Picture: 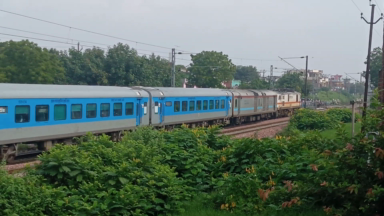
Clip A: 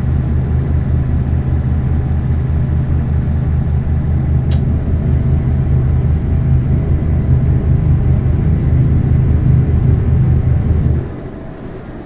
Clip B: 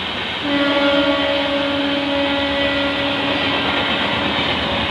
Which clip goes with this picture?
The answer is B